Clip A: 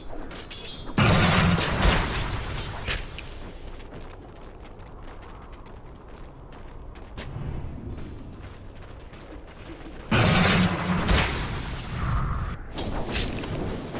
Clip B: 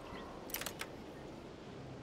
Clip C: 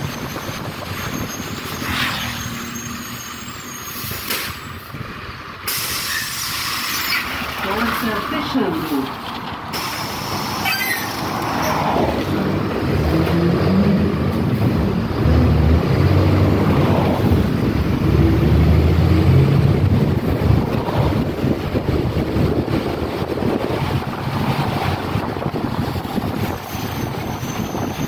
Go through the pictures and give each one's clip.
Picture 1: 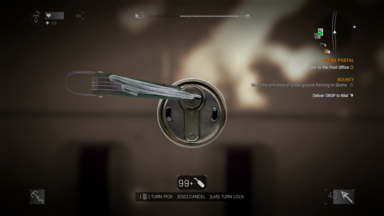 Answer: B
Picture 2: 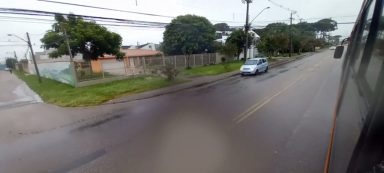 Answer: C